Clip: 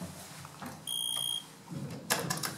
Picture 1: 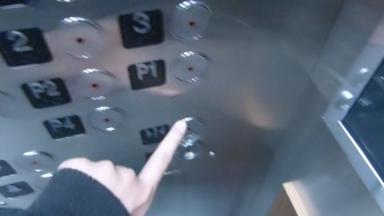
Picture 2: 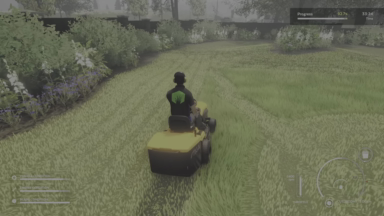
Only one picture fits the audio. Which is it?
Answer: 1